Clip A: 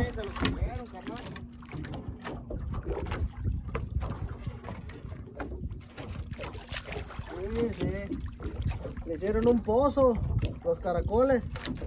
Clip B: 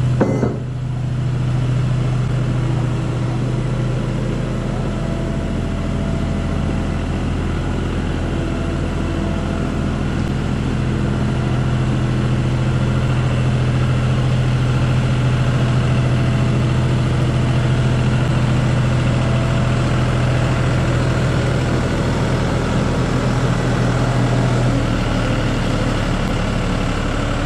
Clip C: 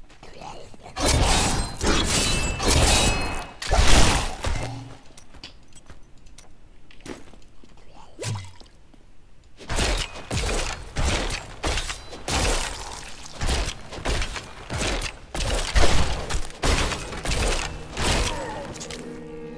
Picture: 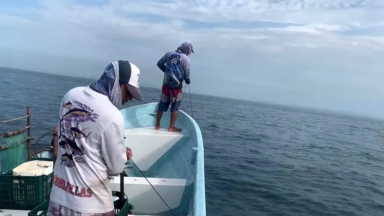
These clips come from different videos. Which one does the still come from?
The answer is A